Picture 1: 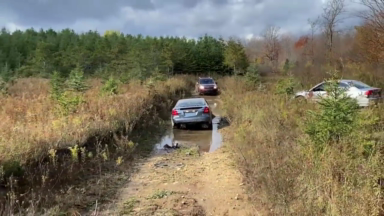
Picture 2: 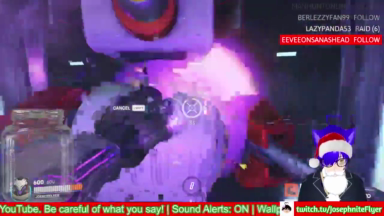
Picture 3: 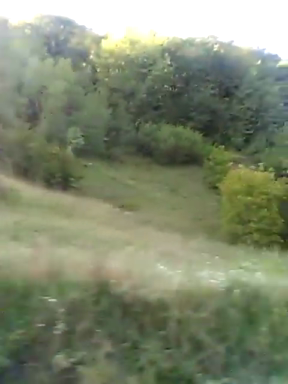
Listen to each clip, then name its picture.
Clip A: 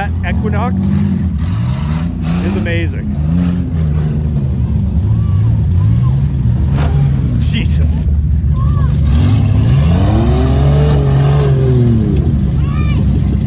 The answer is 1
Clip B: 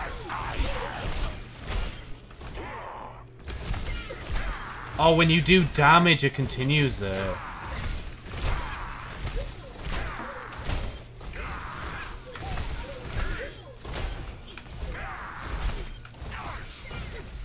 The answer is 2